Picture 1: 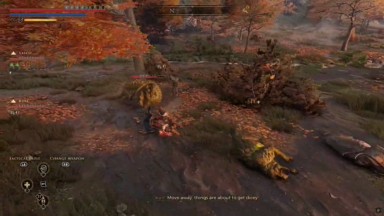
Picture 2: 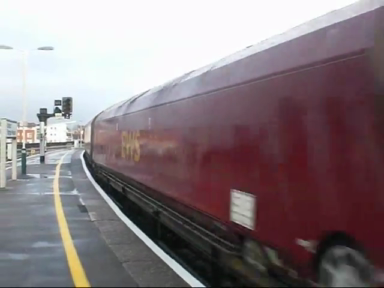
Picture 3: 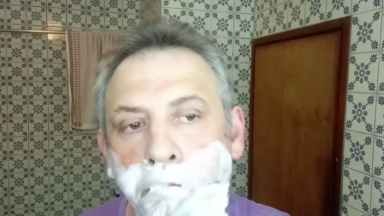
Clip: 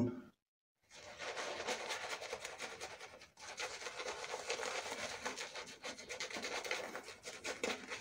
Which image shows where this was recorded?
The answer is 3